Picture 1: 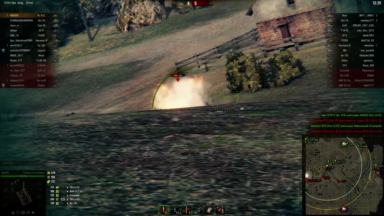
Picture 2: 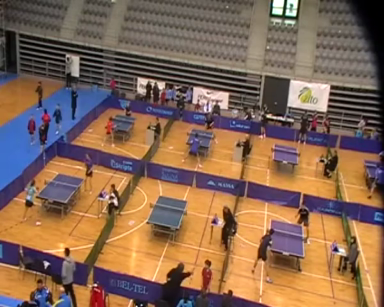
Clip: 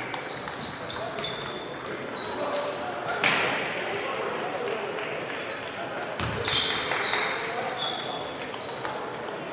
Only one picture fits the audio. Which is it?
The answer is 2